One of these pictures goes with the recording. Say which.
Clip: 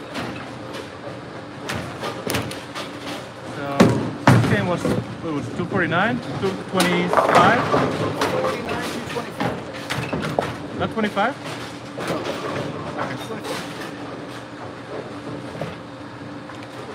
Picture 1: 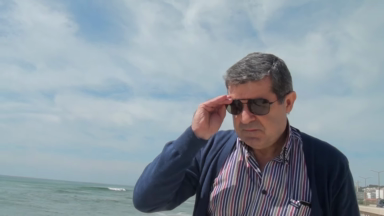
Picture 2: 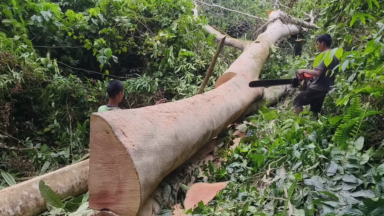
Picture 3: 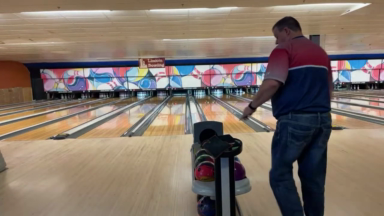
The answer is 3